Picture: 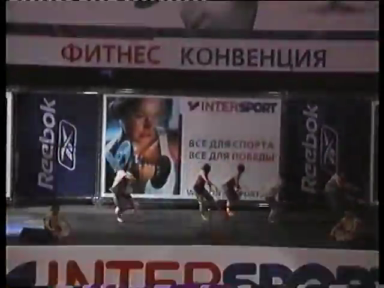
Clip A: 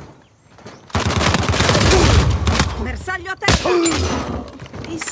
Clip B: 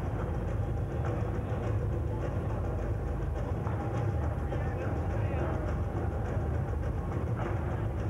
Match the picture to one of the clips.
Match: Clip B